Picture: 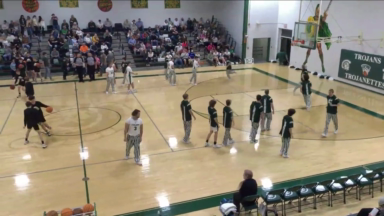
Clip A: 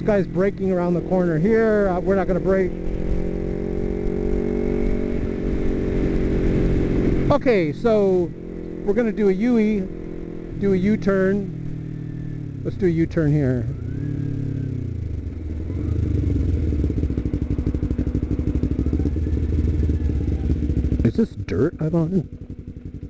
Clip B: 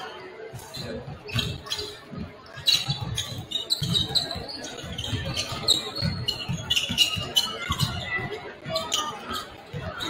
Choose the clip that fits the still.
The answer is B